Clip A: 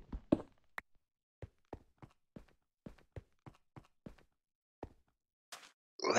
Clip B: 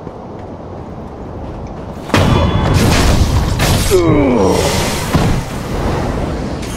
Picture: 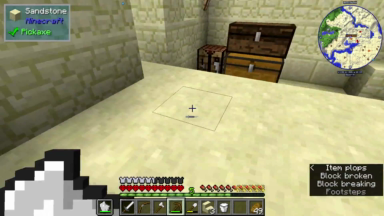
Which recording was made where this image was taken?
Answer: A